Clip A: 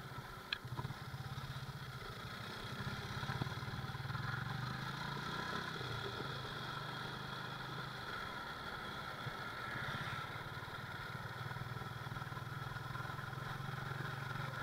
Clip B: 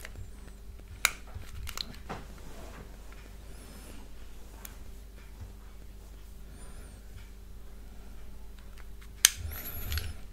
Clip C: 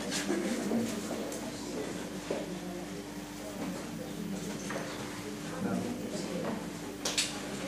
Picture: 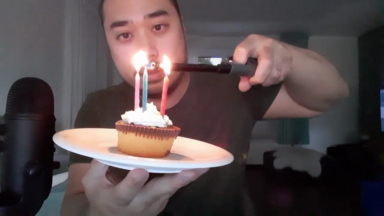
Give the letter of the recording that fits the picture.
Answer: B